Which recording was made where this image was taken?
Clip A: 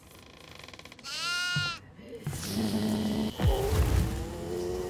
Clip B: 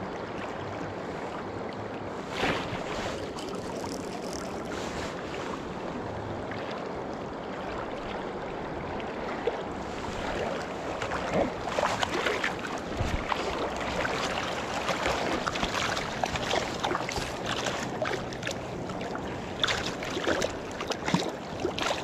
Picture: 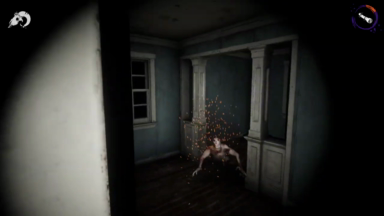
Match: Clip A